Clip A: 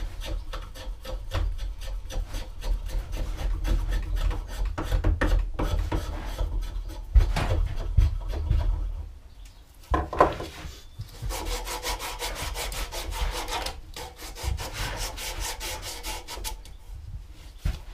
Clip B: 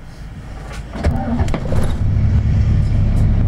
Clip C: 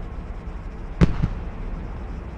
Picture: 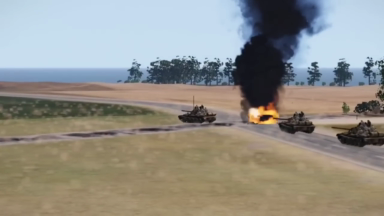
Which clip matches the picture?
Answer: C